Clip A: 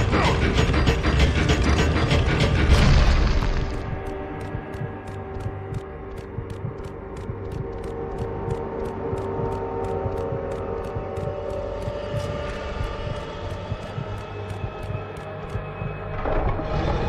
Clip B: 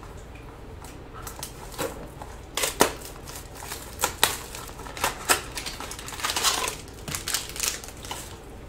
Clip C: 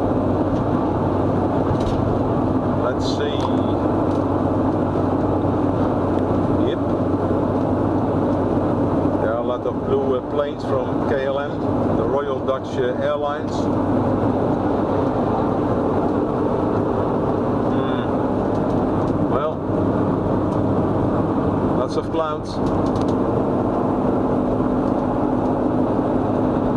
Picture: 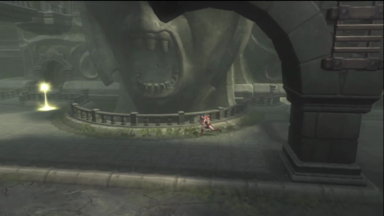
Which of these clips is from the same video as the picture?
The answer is A